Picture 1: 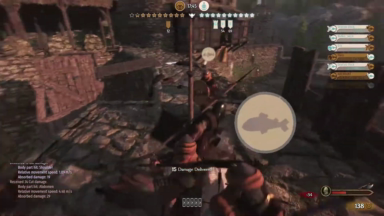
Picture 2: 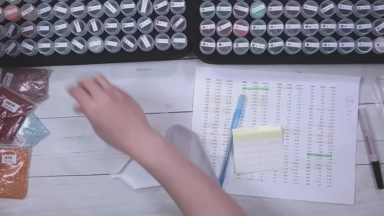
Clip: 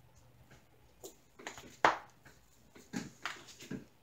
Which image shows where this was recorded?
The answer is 2